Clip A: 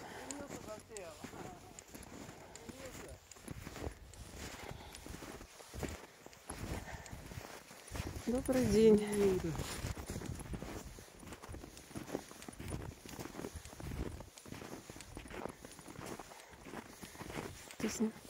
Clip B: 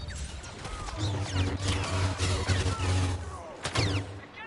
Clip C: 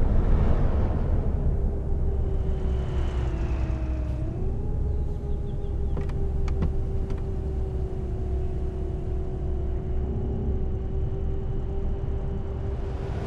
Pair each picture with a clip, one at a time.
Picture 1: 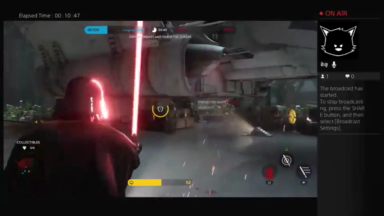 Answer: B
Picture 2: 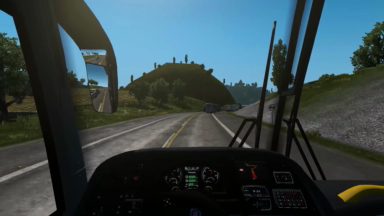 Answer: C